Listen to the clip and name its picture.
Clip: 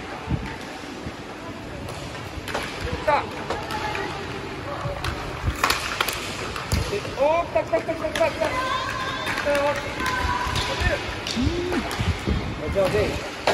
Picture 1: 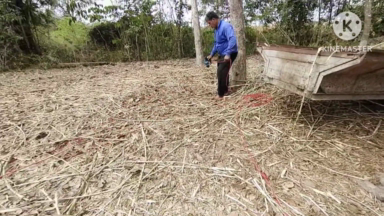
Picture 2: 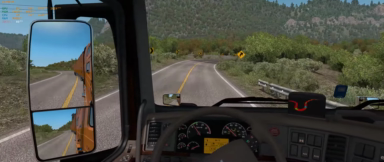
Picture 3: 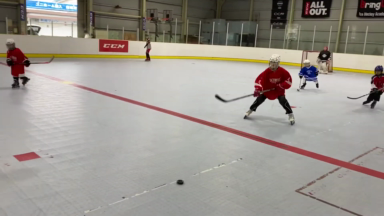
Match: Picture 3